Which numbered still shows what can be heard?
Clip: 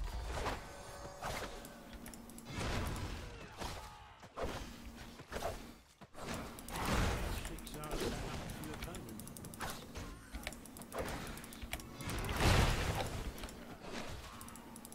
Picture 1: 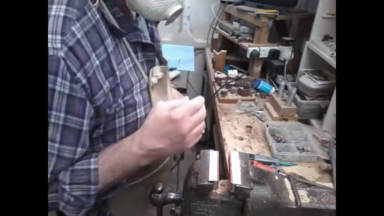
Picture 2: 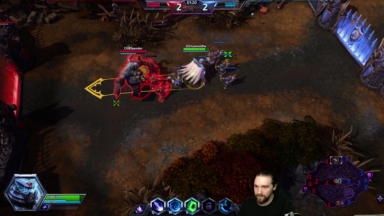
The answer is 2